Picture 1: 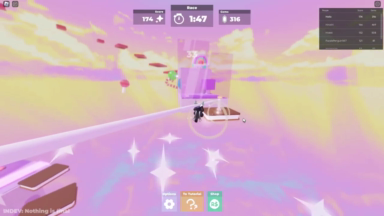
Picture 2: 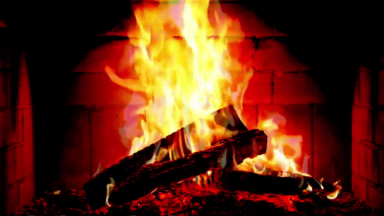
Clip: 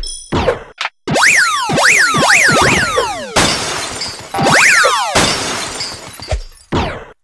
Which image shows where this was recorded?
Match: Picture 1